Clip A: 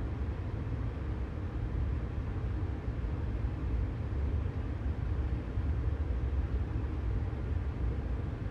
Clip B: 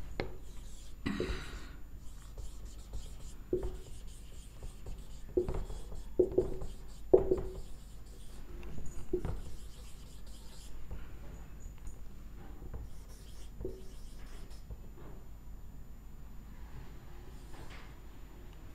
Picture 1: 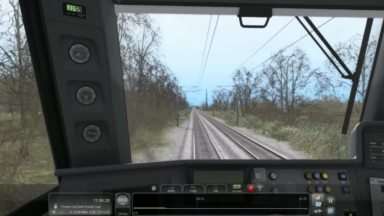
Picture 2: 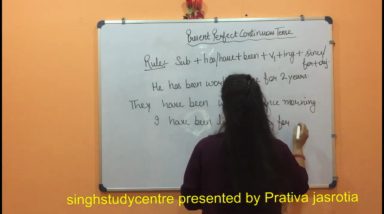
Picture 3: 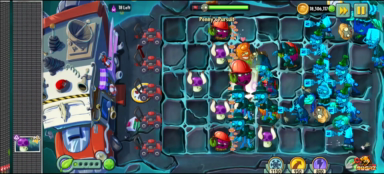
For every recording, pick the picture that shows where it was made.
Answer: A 1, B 2